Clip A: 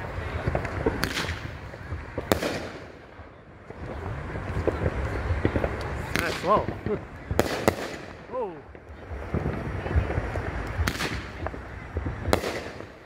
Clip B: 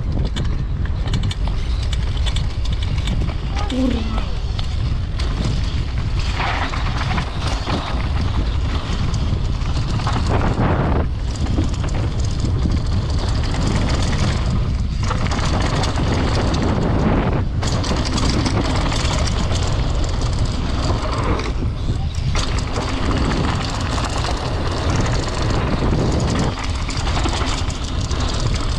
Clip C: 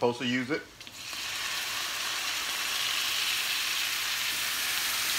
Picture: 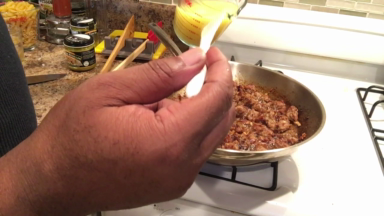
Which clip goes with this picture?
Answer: C